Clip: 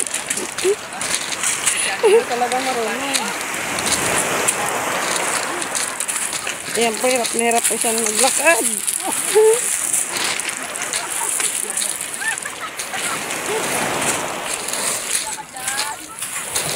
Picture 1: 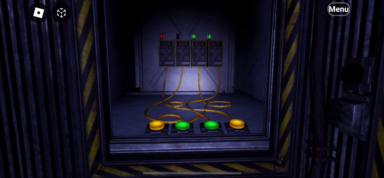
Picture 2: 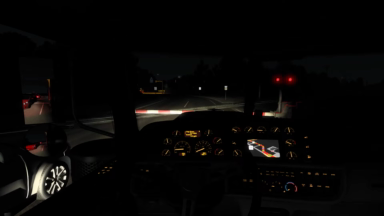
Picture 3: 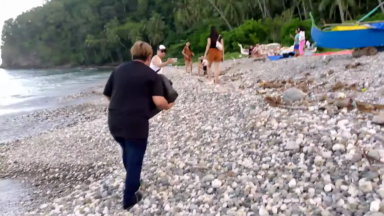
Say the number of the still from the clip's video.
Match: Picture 3